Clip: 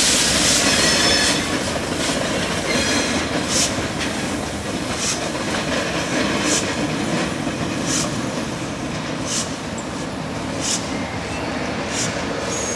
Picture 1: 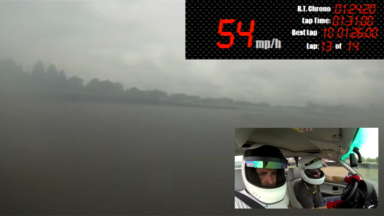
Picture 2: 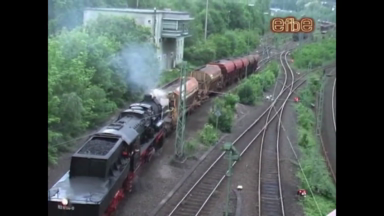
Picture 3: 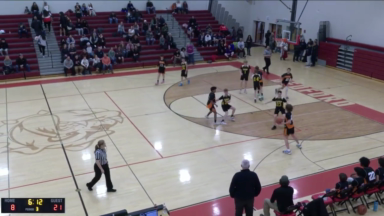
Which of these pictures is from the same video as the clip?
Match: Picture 2